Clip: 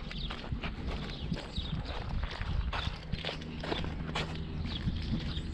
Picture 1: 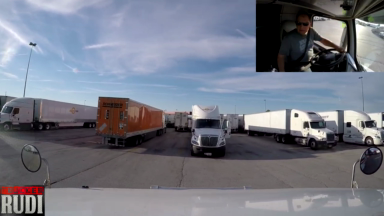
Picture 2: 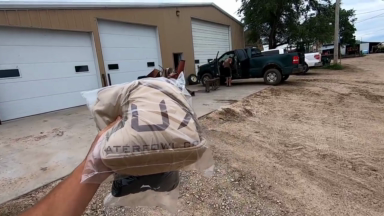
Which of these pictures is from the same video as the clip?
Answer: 2